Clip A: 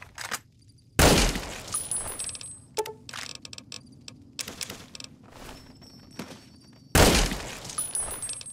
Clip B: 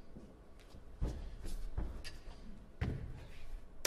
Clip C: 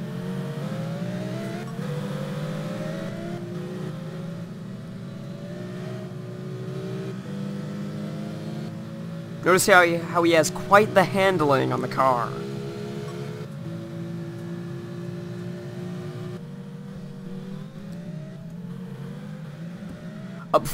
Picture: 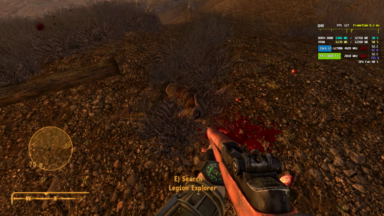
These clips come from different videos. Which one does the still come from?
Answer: A